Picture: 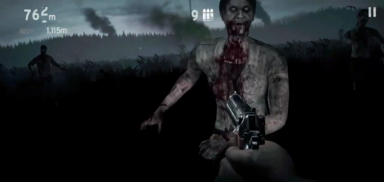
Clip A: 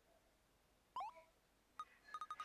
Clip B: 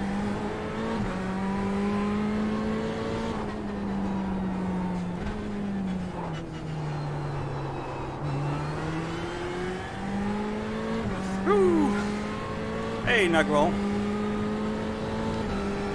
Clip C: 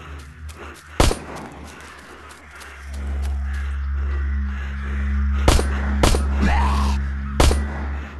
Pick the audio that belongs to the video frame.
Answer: C